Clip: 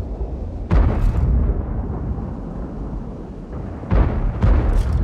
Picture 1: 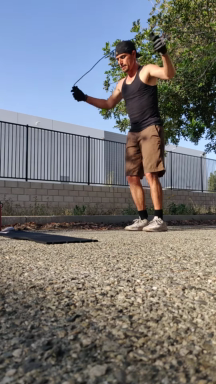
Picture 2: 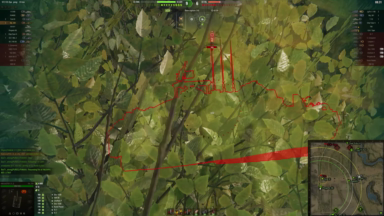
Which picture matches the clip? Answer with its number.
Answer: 2